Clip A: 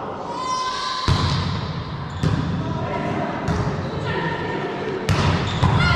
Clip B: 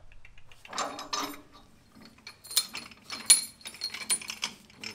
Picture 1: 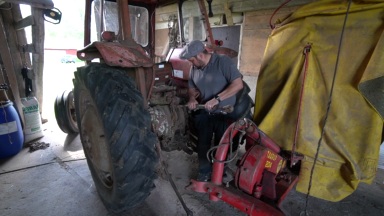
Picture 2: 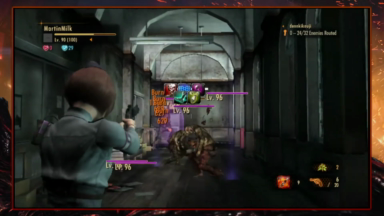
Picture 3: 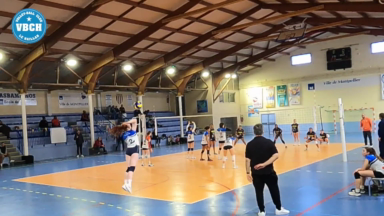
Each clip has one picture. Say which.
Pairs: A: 3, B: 1